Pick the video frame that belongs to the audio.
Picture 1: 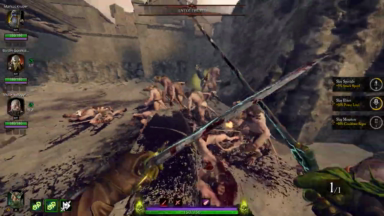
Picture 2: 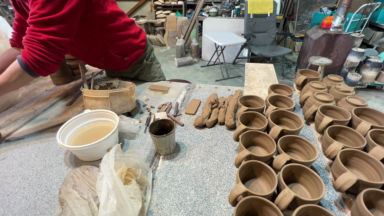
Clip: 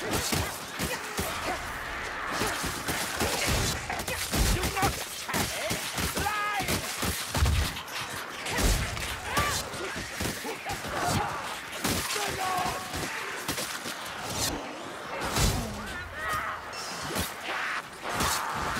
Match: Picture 1